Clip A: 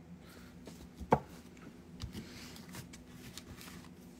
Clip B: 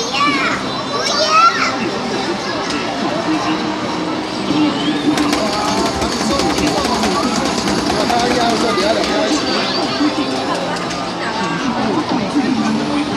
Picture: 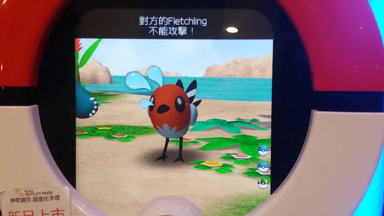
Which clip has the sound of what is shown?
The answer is B